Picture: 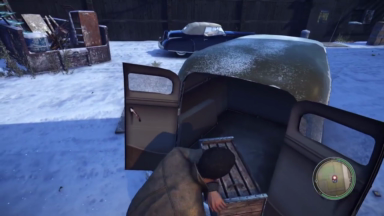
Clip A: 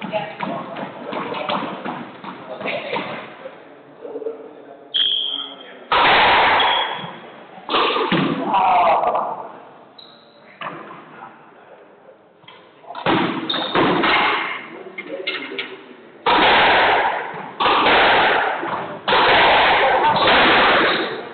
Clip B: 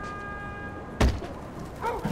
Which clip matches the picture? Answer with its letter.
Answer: B